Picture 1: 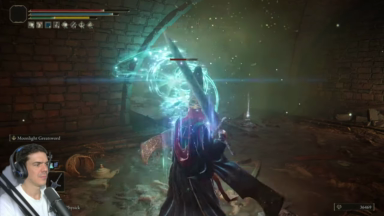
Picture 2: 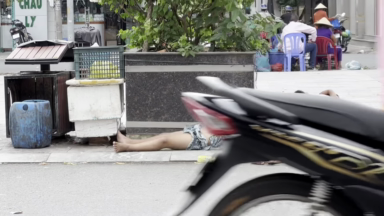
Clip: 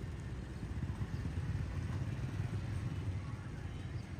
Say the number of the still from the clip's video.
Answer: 2